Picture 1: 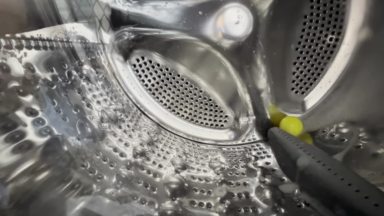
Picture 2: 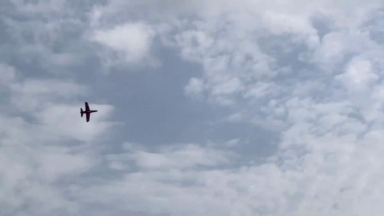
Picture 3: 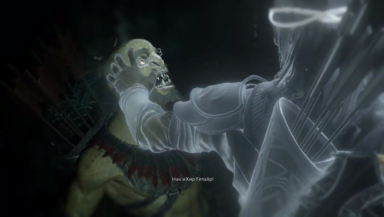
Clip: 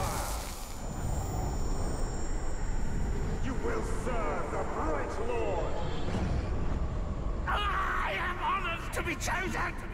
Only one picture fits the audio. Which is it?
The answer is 3